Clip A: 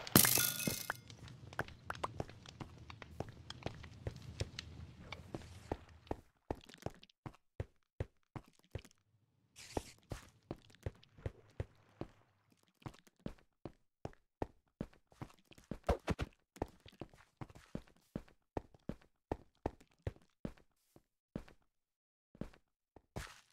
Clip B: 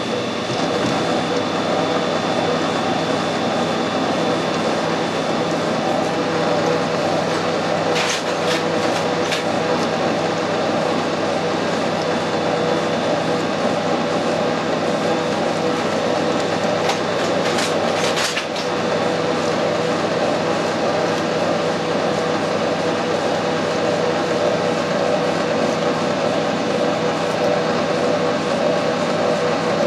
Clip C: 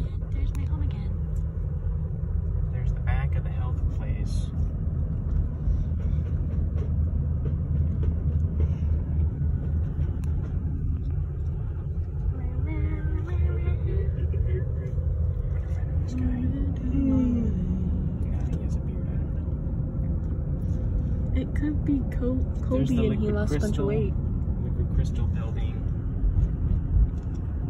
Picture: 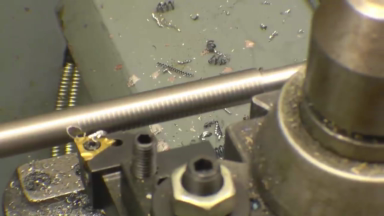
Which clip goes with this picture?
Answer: B